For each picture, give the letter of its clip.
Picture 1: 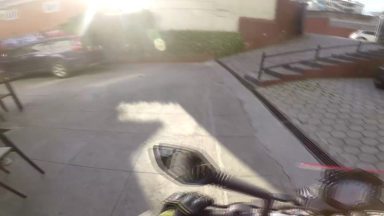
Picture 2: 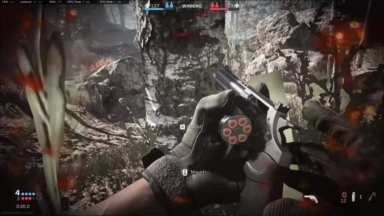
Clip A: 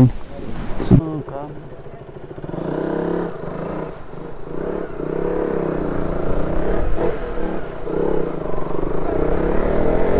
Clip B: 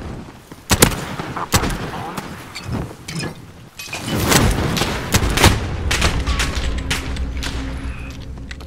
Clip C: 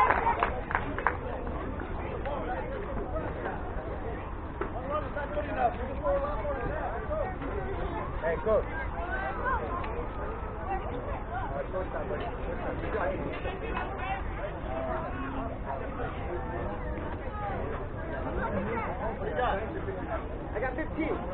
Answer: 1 A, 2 B